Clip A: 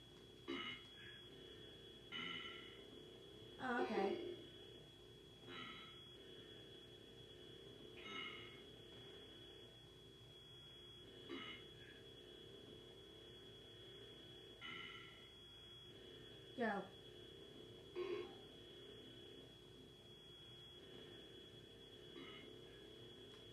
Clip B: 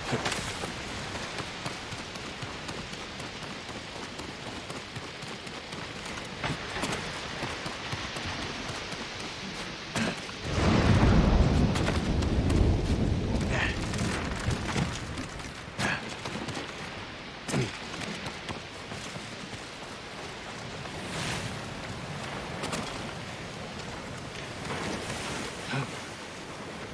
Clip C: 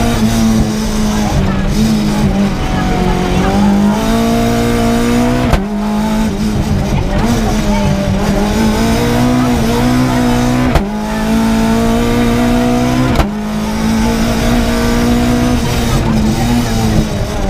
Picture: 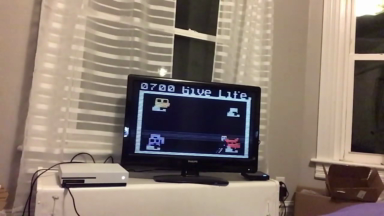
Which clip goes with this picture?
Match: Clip A